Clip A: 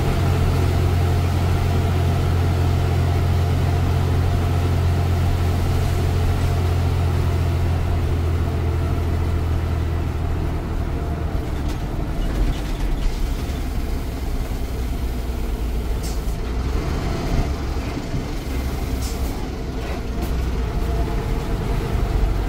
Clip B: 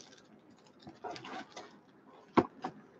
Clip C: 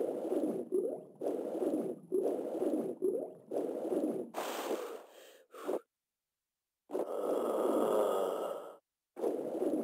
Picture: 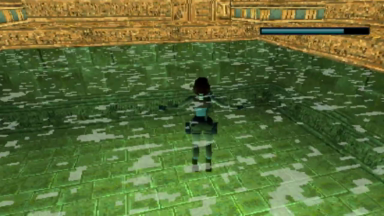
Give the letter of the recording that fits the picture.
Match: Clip C